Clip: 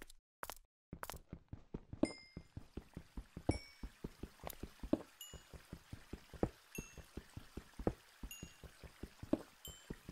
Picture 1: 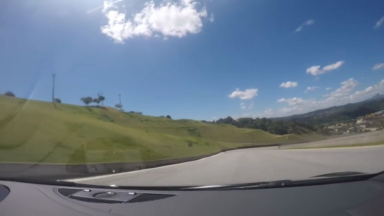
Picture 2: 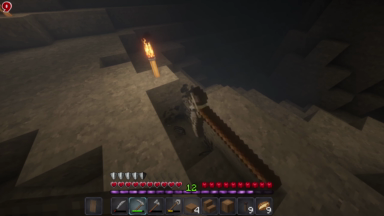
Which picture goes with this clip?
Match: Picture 2